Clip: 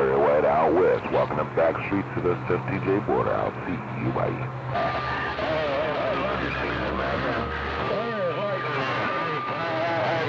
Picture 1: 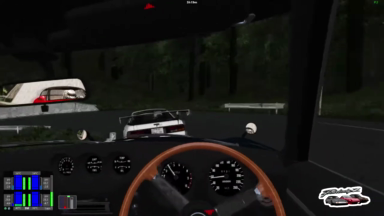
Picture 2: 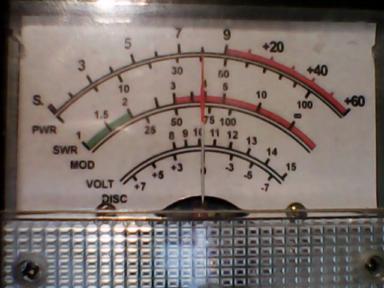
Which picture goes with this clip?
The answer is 2